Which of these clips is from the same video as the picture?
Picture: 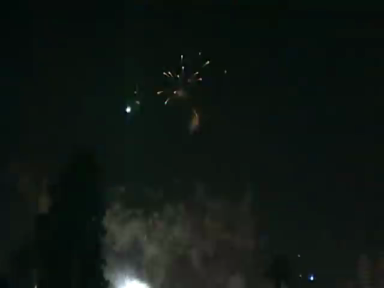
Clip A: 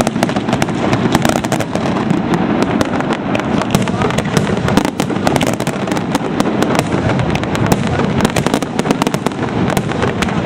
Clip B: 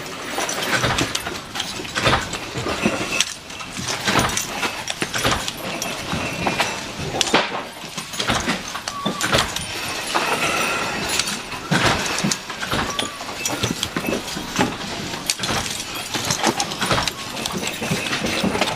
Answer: A